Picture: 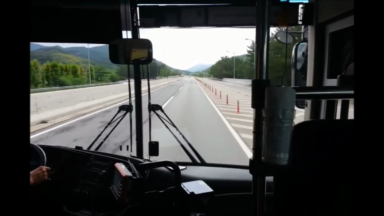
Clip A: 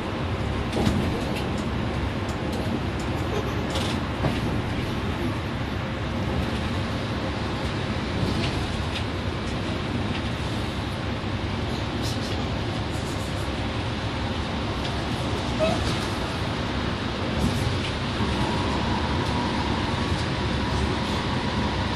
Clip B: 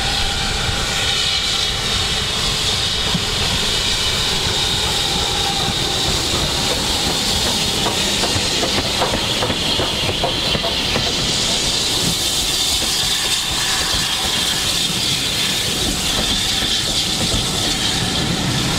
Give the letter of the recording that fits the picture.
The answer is A